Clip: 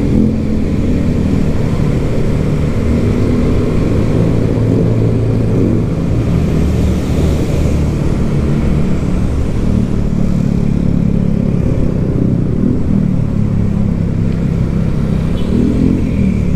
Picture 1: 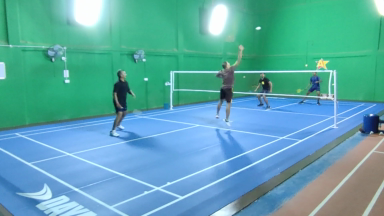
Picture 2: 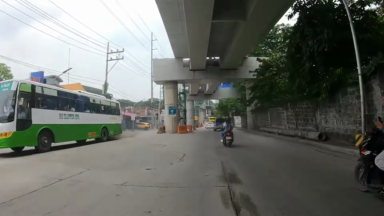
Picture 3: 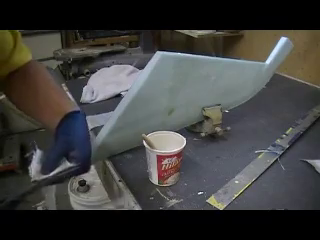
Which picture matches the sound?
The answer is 2